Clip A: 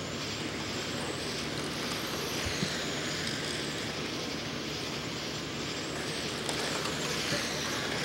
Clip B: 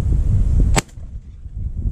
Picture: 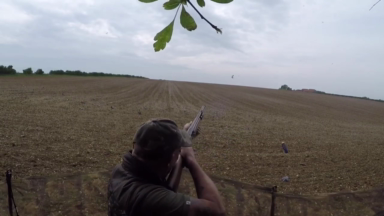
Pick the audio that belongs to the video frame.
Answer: B